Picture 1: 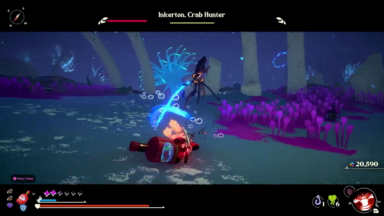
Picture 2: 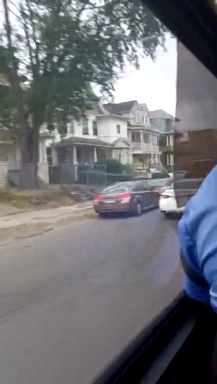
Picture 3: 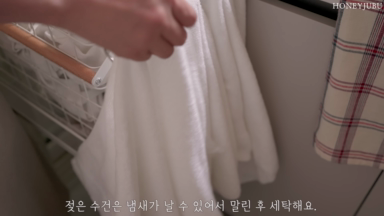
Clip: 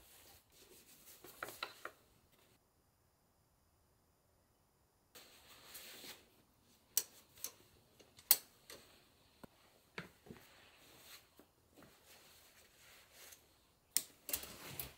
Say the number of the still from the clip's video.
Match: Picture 3